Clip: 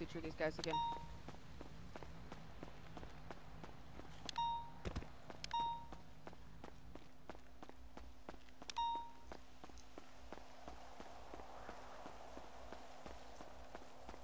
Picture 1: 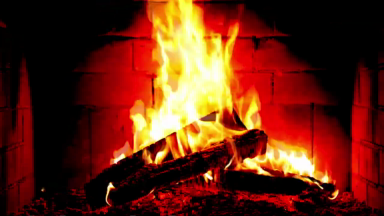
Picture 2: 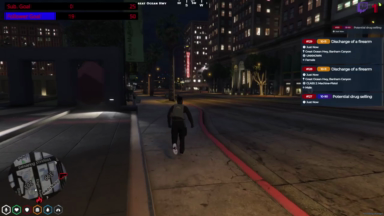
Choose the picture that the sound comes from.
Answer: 2